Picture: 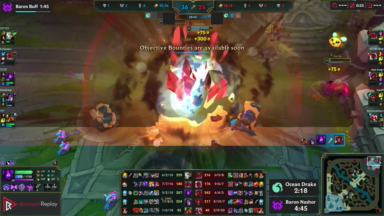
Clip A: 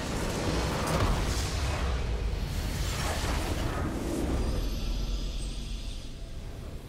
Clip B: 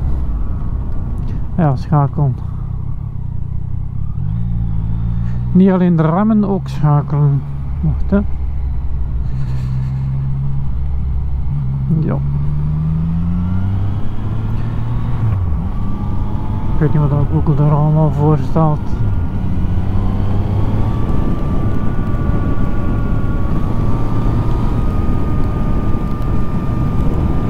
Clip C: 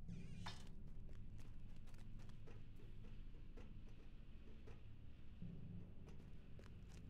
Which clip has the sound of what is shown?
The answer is A